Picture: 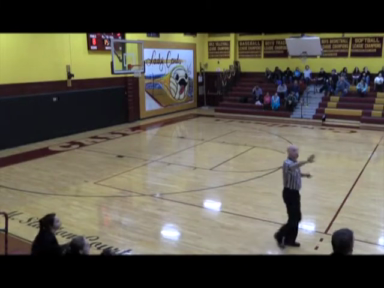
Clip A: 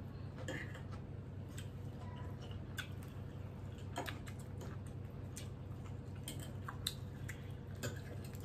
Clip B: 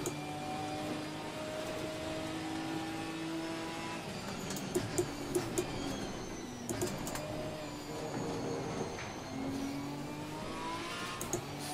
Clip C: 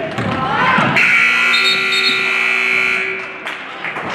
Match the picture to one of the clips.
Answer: C